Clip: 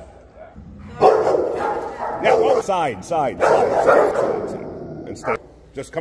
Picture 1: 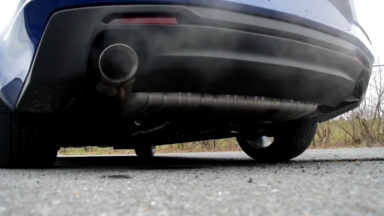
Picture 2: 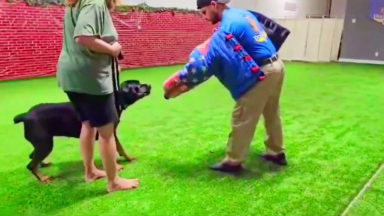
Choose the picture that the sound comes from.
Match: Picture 2